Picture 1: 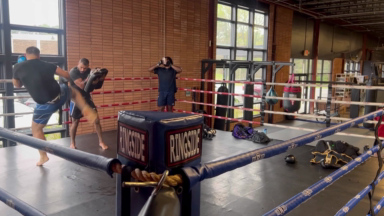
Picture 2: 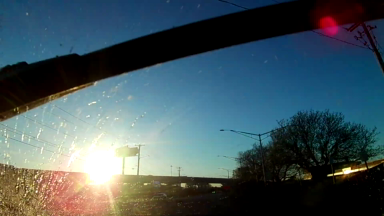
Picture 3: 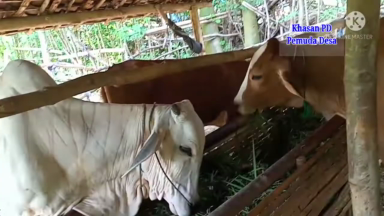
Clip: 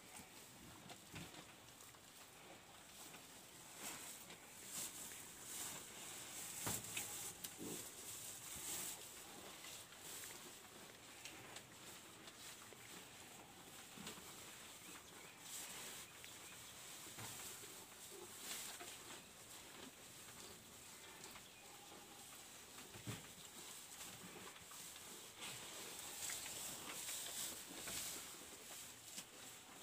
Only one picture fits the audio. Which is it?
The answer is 3